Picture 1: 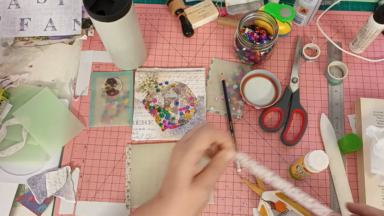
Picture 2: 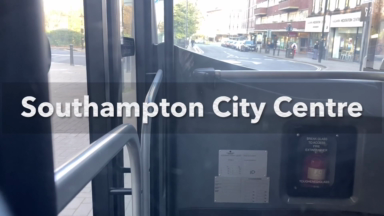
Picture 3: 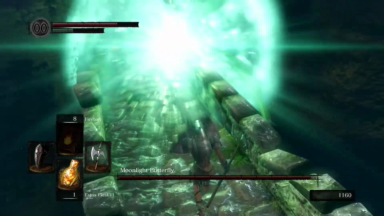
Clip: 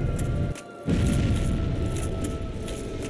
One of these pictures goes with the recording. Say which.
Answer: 3